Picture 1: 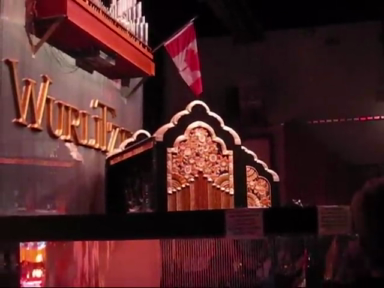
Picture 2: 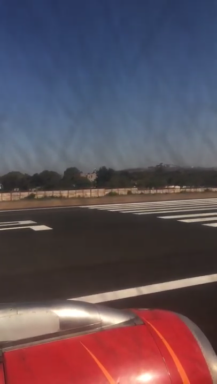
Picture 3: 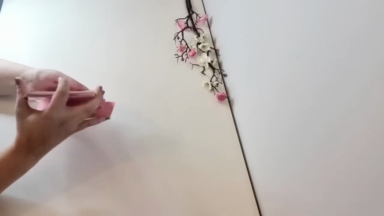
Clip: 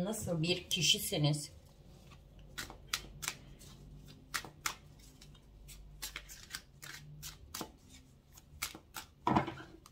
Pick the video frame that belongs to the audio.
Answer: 3